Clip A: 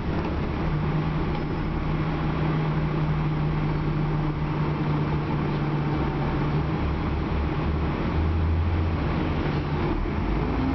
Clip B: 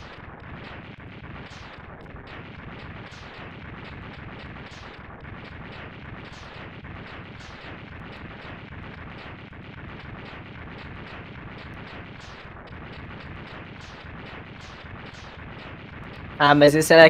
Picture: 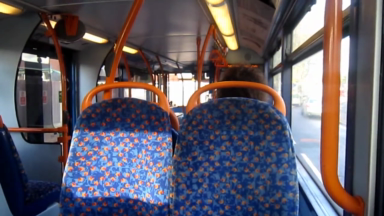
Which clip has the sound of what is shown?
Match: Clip A